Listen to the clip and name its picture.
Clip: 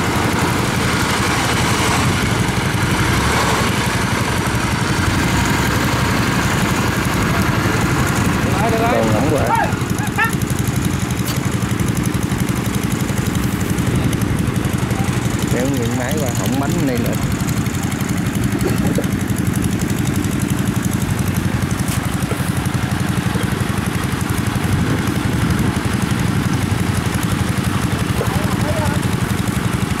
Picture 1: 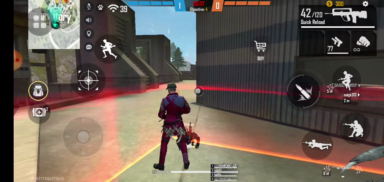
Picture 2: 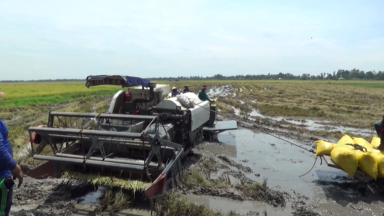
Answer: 2